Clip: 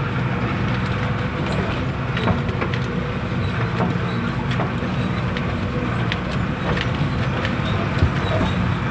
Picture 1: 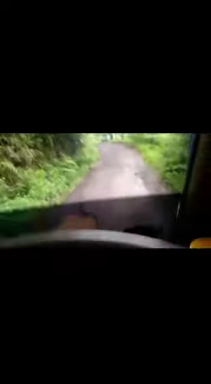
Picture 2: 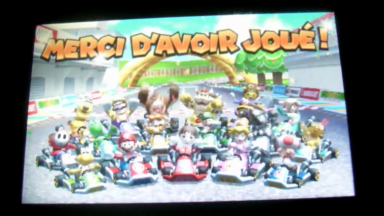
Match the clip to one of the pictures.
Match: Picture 1